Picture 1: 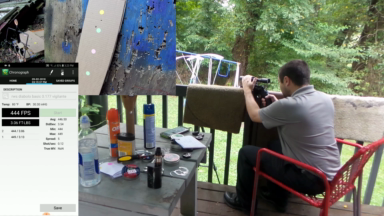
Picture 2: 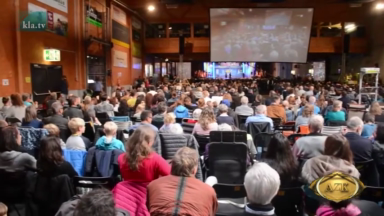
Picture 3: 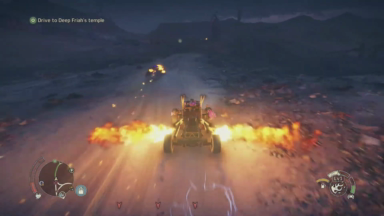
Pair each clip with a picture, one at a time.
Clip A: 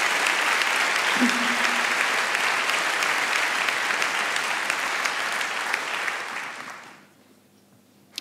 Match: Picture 2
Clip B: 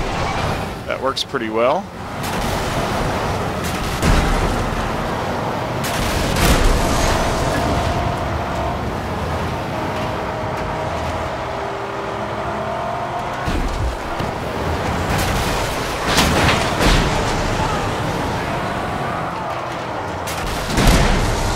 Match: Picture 3